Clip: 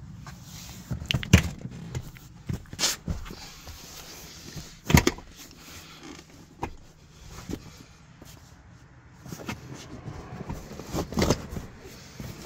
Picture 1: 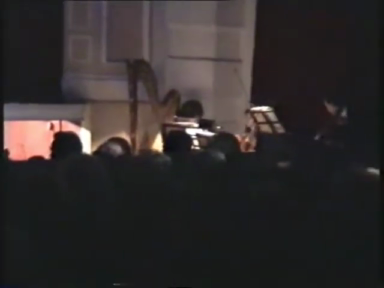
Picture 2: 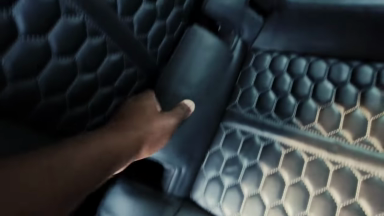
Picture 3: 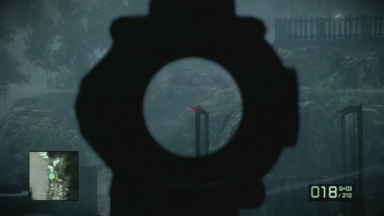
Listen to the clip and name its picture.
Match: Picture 2